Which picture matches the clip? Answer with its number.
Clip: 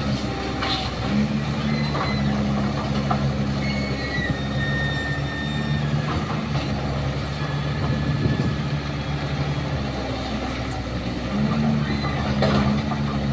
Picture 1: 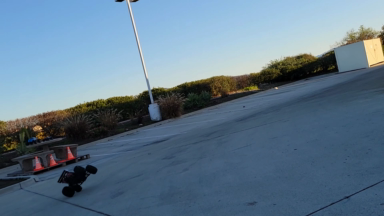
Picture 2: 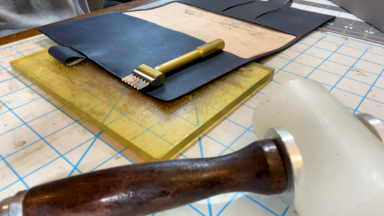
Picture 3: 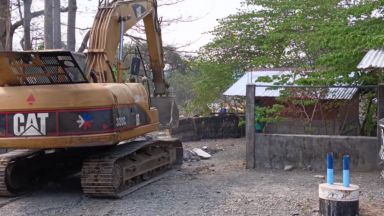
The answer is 3